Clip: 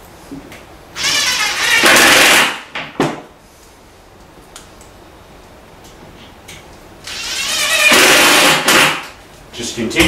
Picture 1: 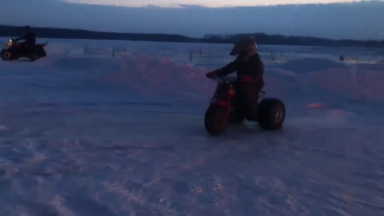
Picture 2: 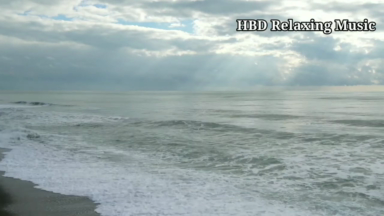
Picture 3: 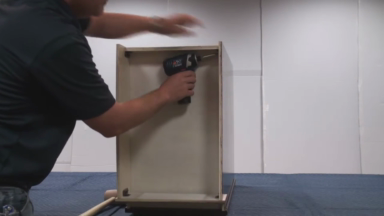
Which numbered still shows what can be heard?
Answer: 3